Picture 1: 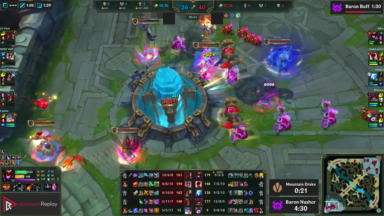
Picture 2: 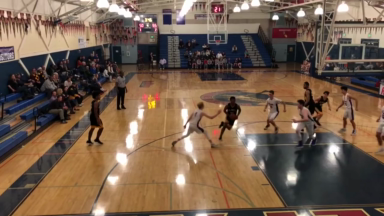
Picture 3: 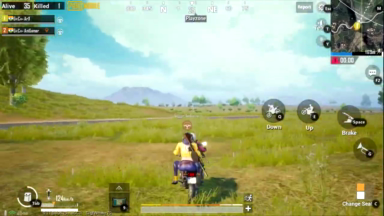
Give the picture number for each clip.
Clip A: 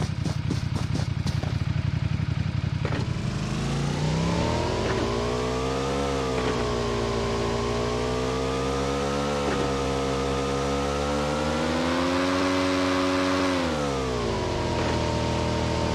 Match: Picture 3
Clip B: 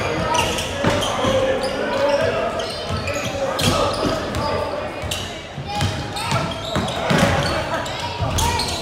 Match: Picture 2